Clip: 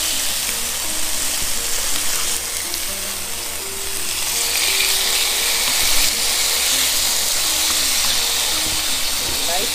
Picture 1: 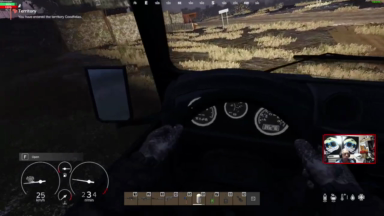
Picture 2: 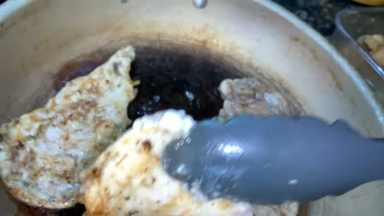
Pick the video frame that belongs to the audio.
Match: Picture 2